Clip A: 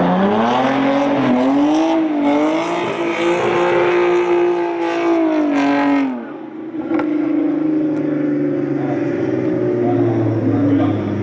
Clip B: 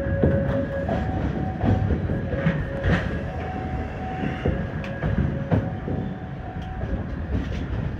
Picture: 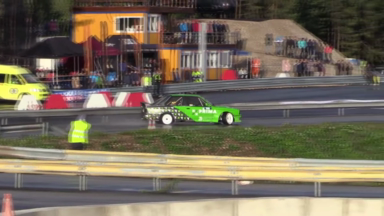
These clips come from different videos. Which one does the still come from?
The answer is A